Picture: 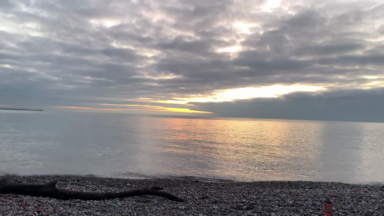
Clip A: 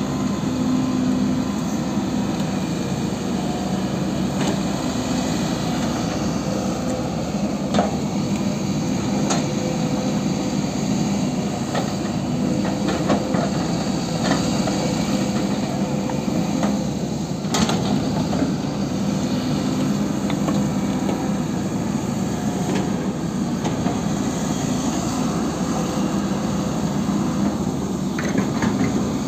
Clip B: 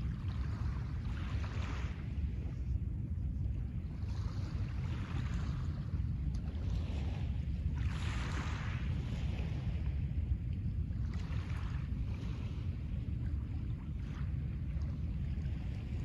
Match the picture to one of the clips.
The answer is B